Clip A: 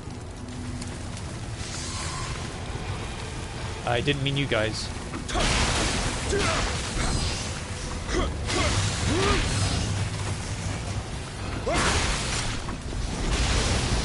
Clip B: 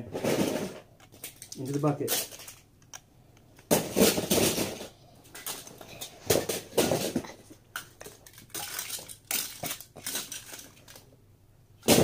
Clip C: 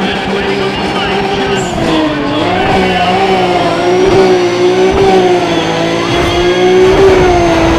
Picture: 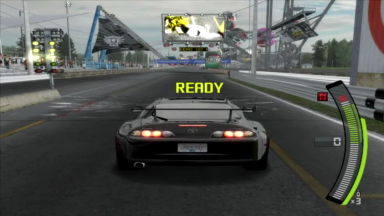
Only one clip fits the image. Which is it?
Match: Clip C